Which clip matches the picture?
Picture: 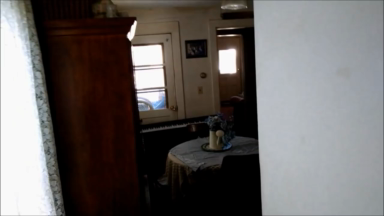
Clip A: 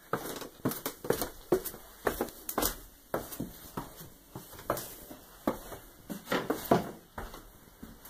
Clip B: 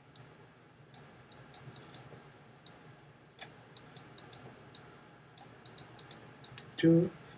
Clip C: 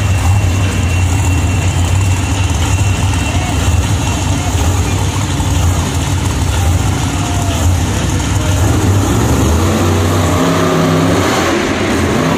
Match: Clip A